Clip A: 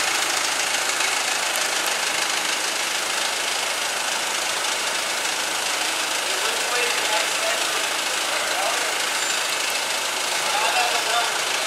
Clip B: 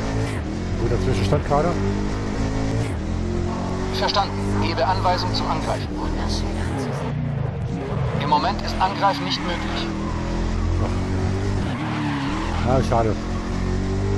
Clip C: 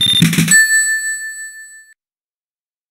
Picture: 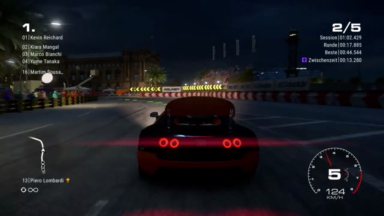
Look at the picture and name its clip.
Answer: B